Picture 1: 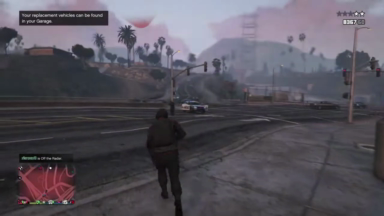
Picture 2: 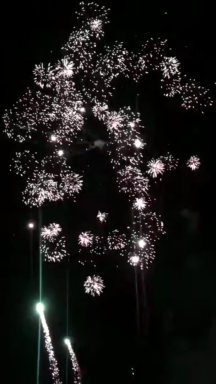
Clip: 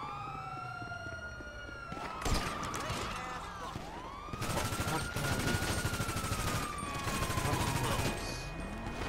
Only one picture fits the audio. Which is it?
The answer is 1